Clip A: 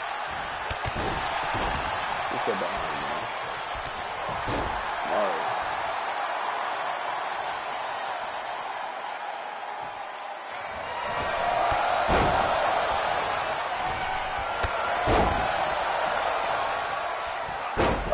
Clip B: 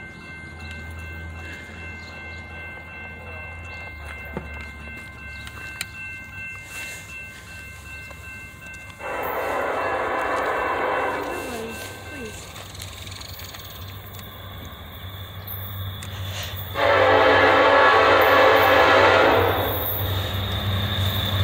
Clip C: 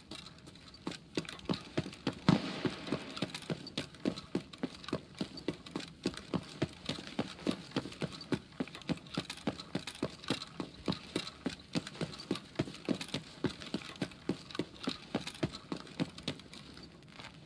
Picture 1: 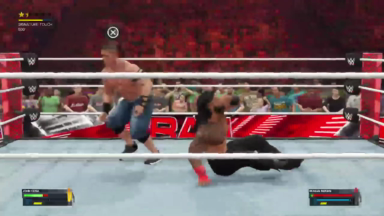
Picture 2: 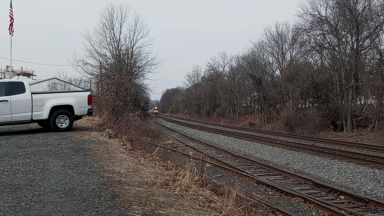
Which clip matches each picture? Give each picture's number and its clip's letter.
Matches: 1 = A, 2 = B